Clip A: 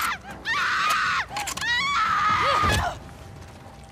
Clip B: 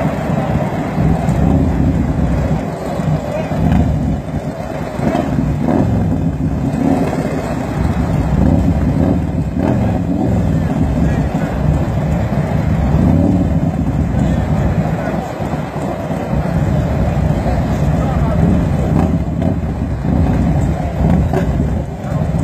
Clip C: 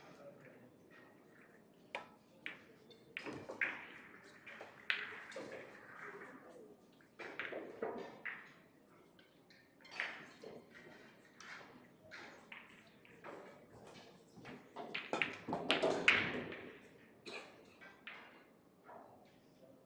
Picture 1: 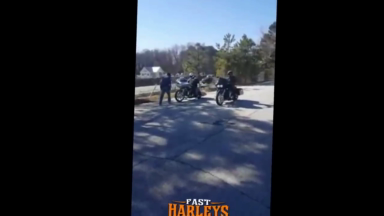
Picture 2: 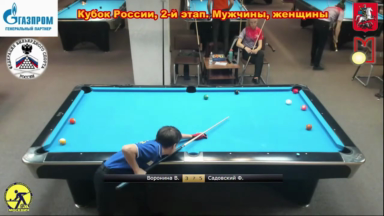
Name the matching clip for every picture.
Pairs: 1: B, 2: C